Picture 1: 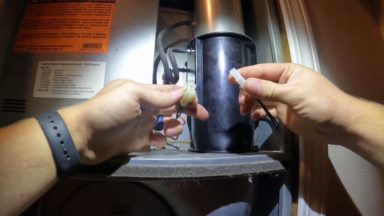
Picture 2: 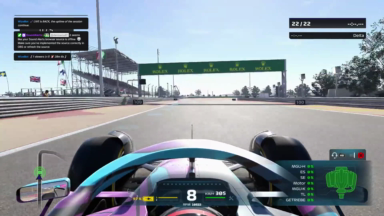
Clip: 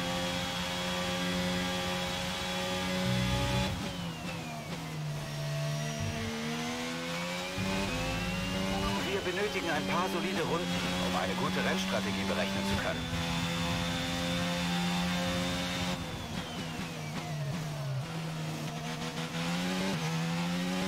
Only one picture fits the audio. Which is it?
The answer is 2